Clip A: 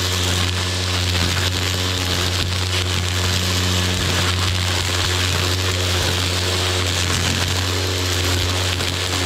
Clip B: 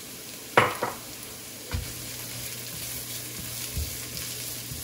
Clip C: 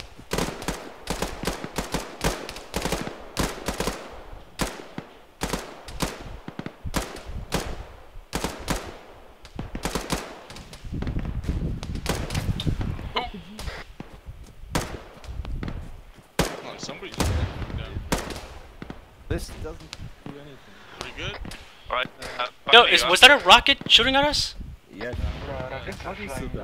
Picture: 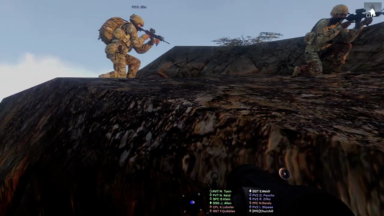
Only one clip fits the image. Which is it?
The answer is C